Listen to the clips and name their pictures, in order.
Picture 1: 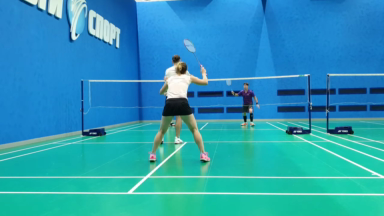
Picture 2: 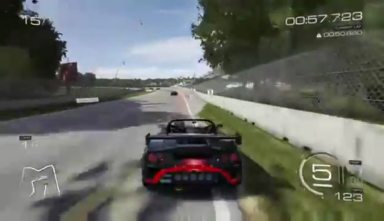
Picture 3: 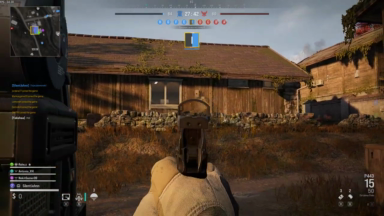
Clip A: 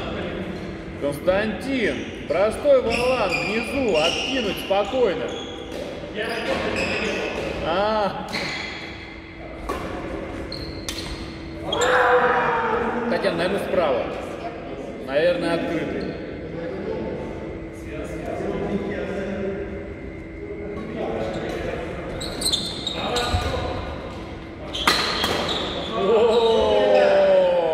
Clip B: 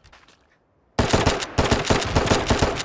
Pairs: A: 1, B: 3